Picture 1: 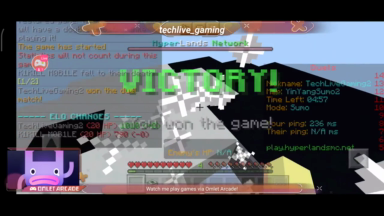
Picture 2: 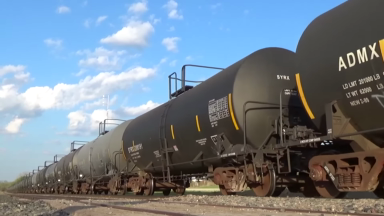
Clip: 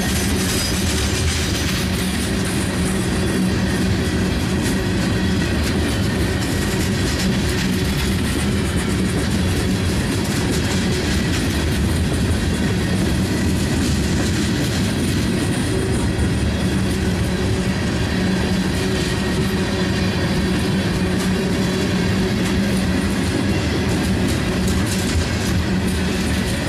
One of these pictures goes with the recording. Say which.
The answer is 2